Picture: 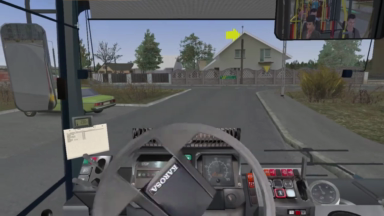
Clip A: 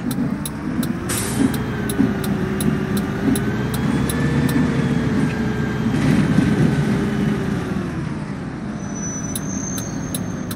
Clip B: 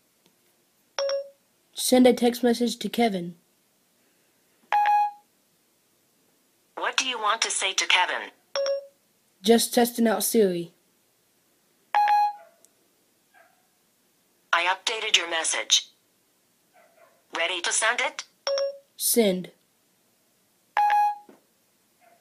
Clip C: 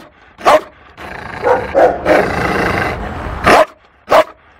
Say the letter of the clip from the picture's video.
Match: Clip A